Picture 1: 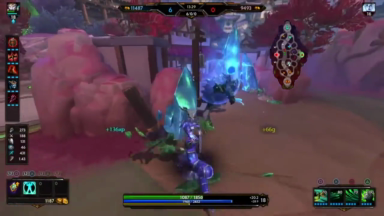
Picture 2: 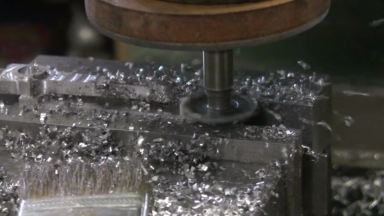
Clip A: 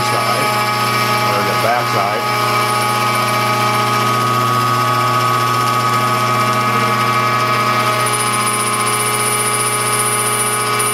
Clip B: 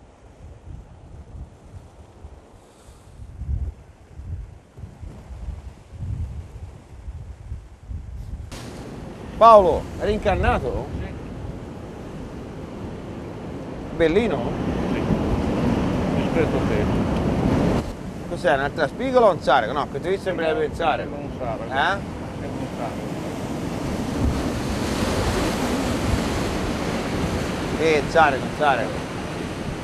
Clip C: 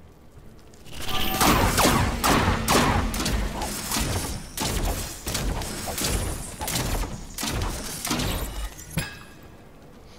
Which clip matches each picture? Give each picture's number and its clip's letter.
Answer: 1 C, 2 A